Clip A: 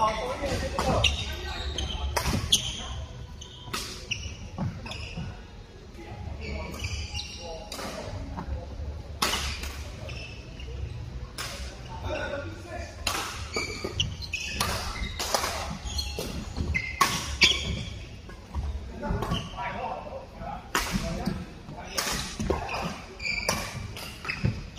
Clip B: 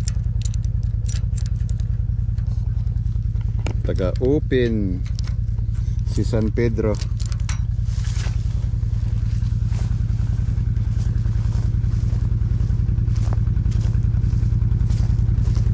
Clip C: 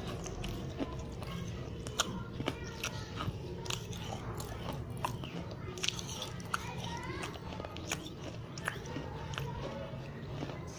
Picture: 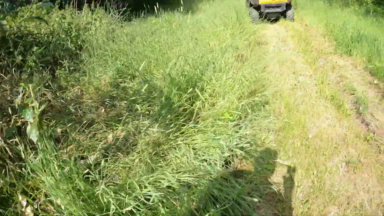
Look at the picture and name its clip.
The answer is B